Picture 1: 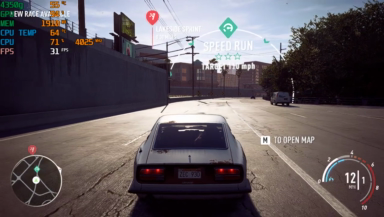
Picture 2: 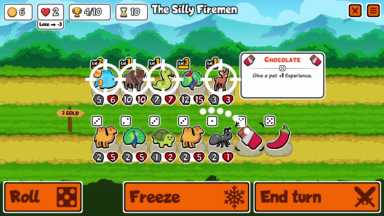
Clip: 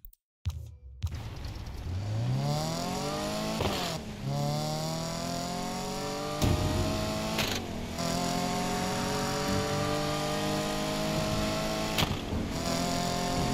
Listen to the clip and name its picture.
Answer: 1